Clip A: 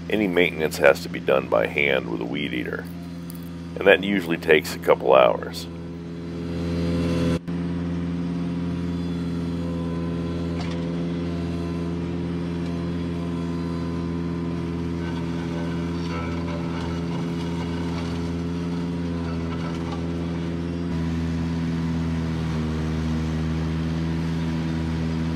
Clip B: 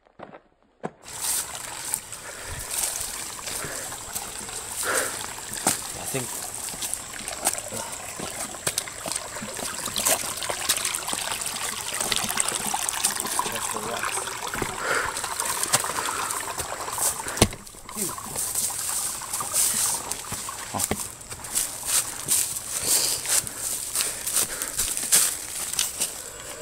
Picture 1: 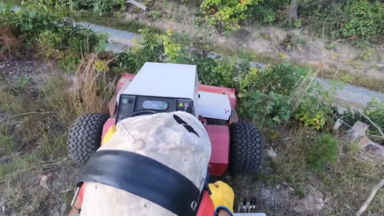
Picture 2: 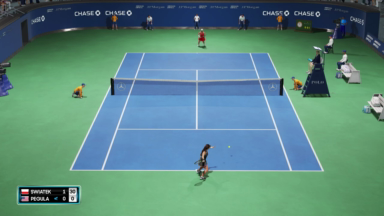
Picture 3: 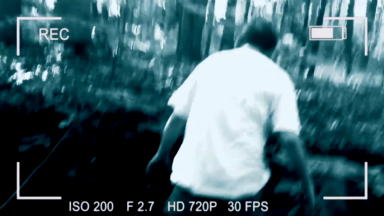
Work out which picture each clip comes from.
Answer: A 1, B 3